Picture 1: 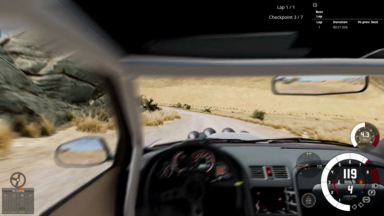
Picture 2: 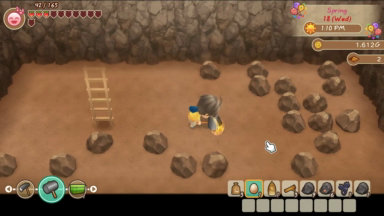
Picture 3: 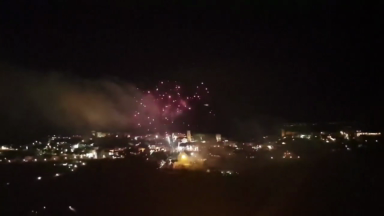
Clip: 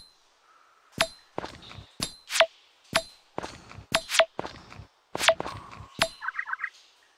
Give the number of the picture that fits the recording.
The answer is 2